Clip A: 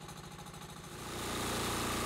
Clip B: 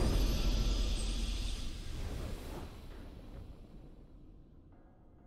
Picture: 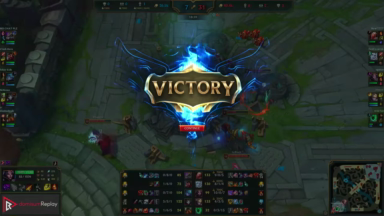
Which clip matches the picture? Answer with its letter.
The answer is B